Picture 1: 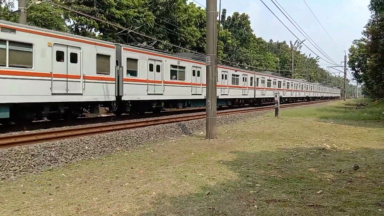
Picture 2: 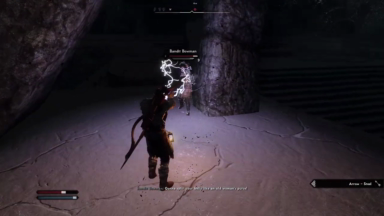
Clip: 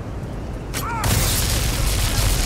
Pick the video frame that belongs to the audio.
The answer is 2